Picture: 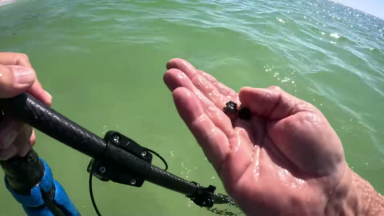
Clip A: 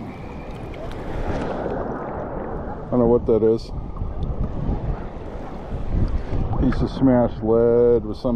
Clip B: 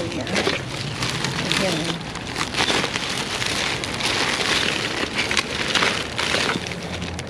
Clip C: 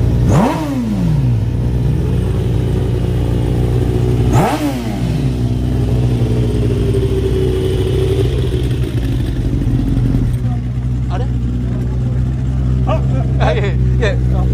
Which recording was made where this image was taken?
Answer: A